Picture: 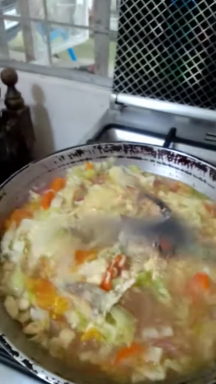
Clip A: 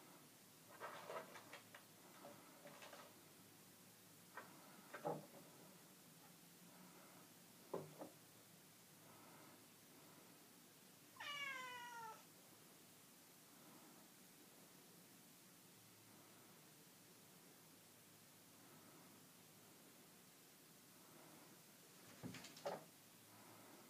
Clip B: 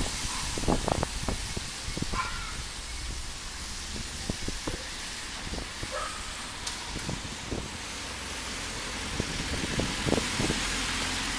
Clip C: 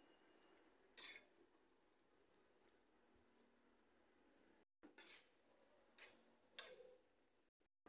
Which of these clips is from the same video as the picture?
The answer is C